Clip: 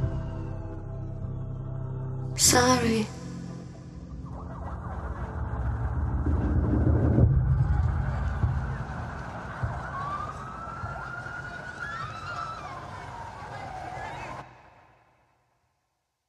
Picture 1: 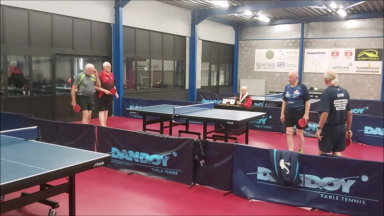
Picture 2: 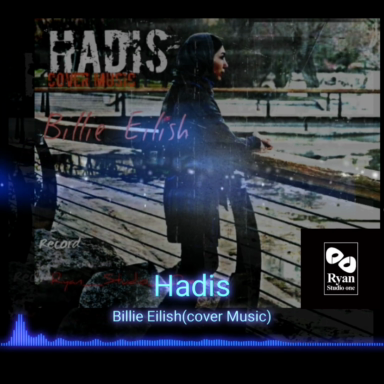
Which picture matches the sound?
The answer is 2